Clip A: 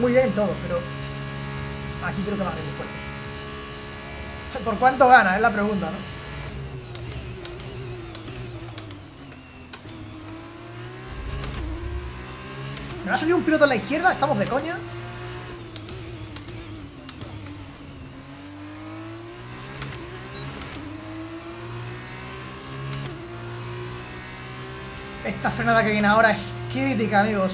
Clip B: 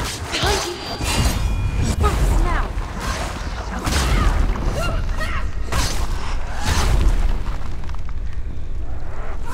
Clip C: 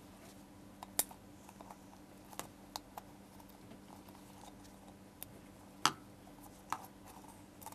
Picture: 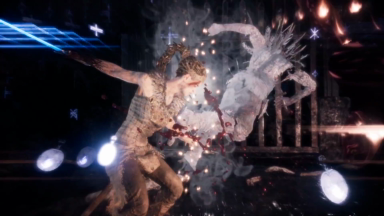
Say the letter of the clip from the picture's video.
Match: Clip B